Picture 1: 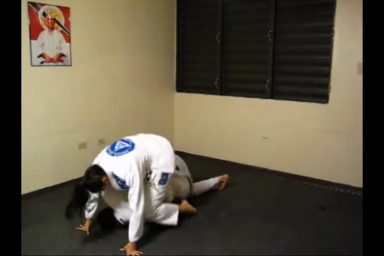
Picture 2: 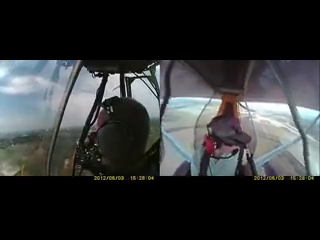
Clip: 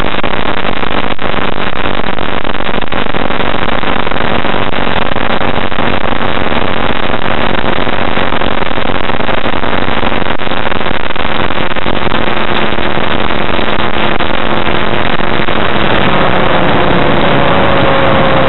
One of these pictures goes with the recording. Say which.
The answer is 2